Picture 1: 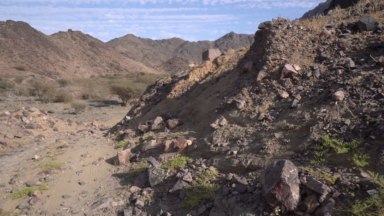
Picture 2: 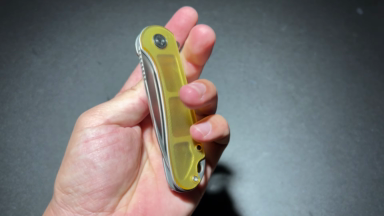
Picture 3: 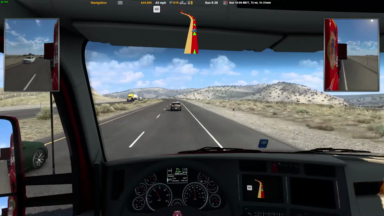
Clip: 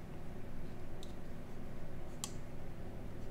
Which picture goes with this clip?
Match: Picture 2